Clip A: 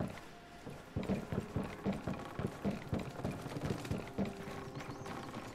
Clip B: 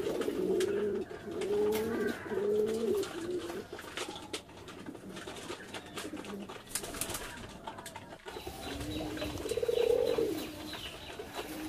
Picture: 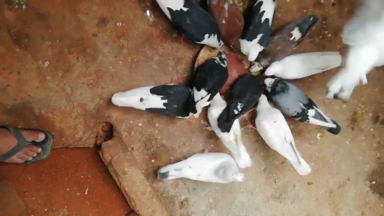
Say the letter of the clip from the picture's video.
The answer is B